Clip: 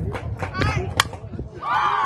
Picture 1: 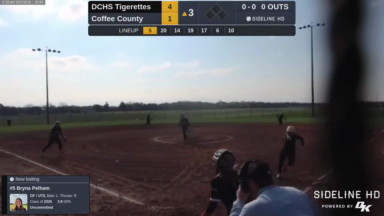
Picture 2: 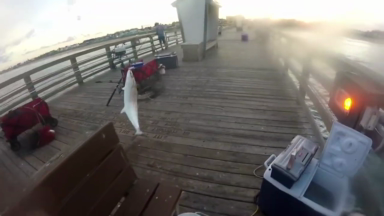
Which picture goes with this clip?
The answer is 1